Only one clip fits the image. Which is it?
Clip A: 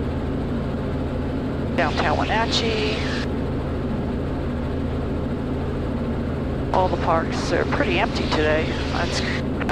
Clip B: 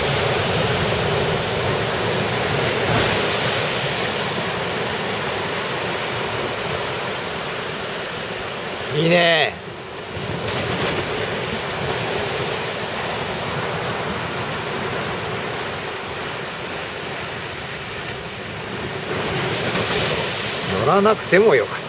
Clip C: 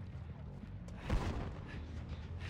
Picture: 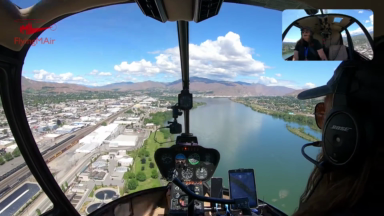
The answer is A